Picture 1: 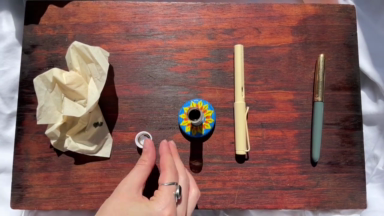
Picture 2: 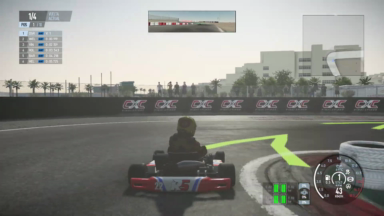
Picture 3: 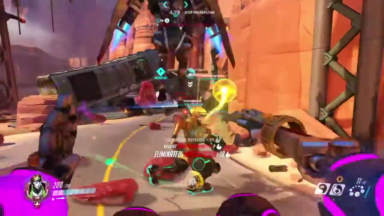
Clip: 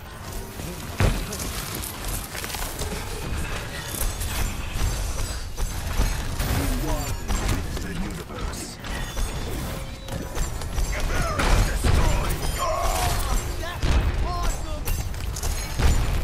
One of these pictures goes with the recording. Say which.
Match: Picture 3